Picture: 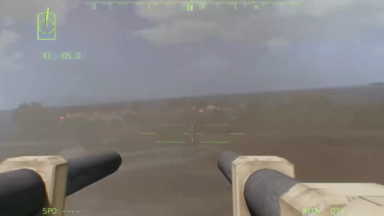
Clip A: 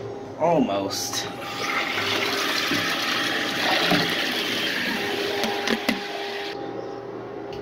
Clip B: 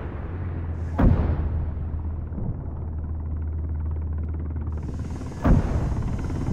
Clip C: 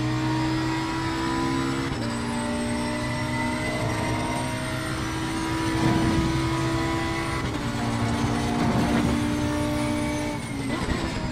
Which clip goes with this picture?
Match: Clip B